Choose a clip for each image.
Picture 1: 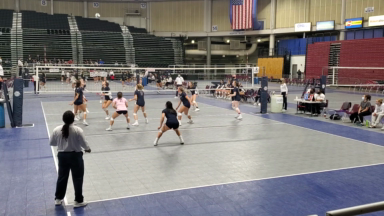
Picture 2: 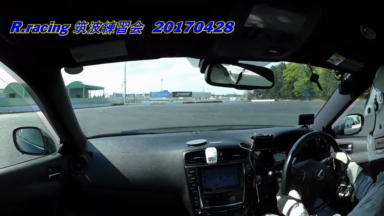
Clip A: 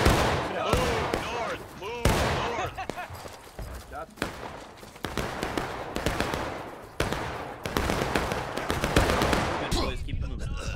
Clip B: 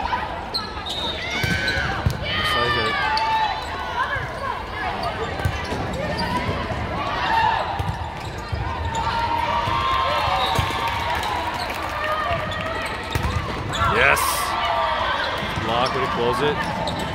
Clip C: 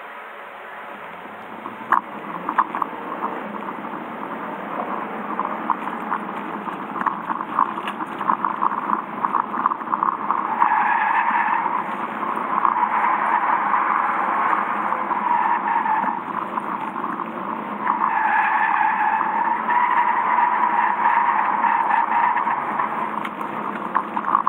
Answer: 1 B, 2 C